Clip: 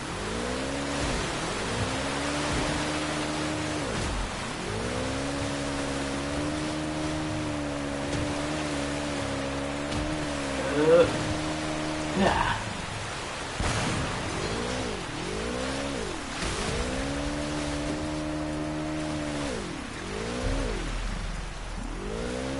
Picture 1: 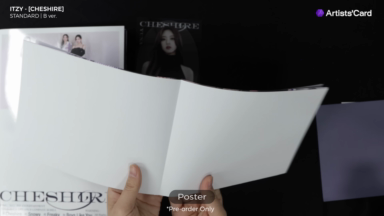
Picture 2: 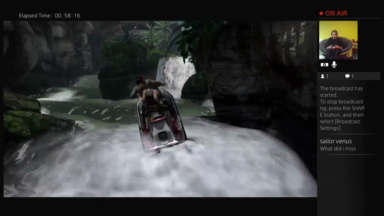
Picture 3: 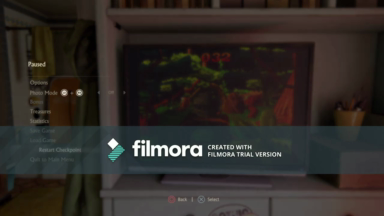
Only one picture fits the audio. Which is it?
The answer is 2